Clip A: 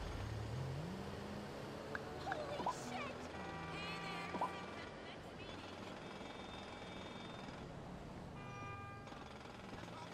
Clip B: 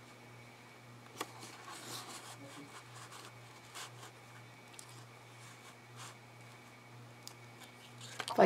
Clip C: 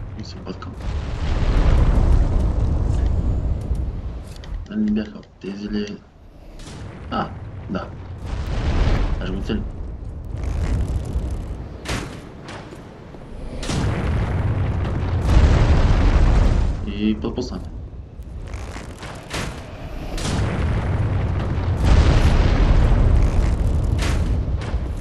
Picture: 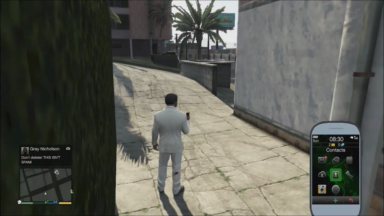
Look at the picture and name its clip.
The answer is A